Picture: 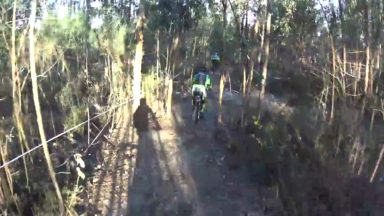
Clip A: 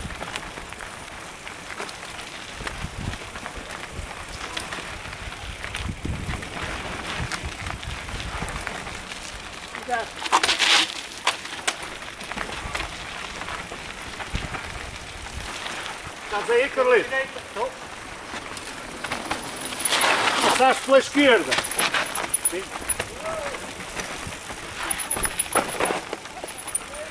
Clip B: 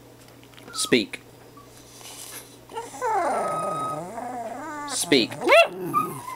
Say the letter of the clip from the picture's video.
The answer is A